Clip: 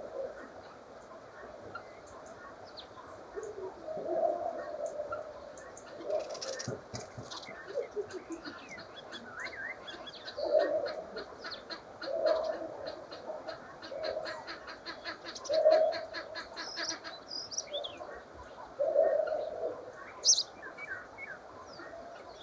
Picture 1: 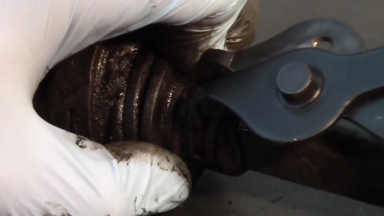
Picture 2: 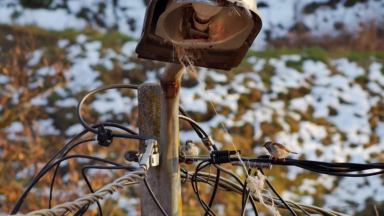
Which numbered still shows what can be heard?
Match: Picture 2